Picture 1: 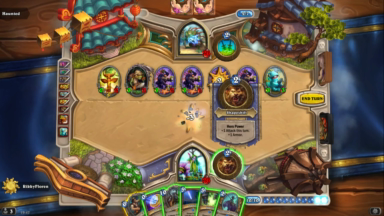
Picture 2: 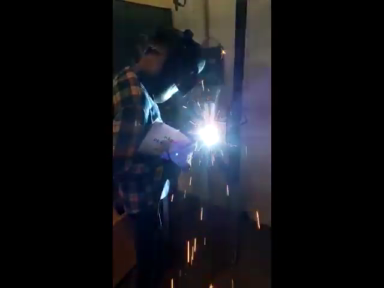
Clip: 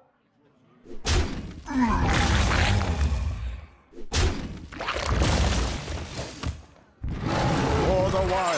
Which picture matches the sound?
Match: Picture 1